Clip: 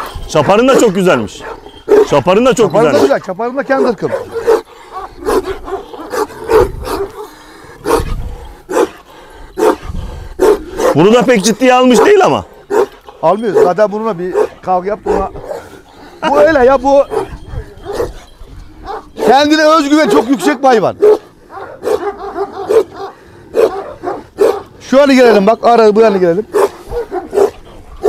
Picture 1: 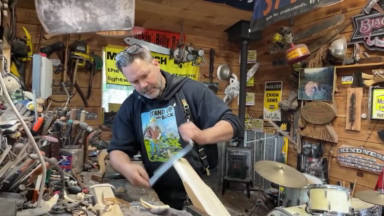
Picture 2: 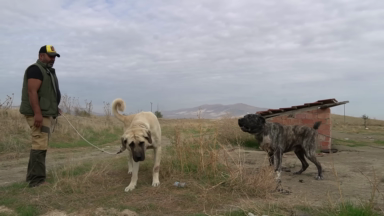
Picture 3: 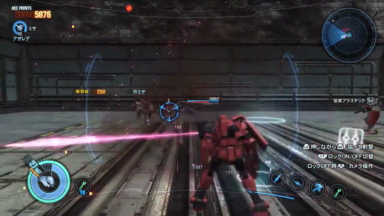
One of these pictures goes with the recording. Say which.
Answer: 2